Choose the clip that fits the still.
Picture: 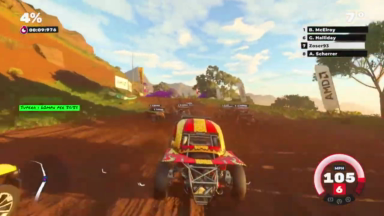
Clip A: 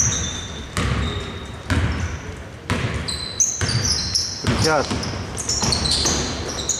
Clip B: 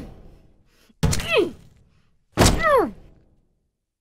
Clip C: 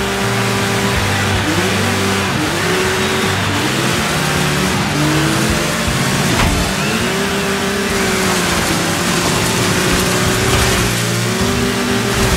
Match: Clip C